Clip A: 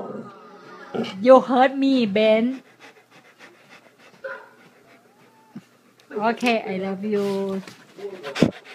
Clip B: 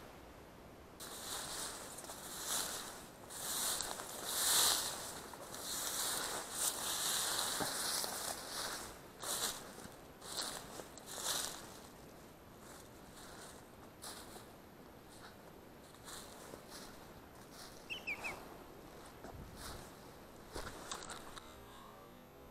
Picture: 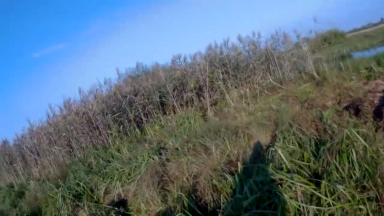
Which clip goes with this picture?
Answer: B